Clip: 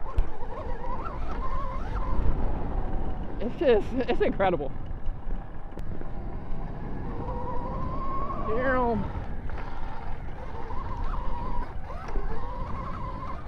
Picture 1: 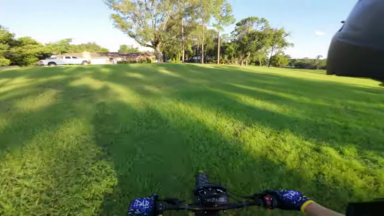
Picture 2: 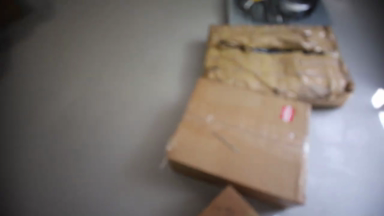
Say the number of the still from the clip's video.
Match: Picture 1